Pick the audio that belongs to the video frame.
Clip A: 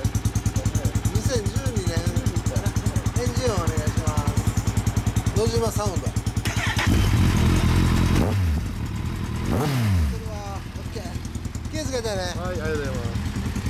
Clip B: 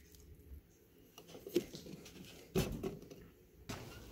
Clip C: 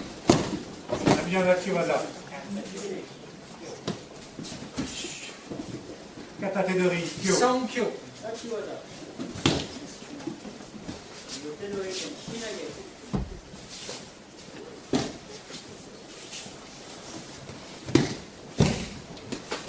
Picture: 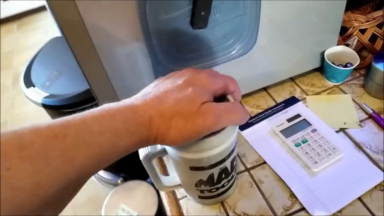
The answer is B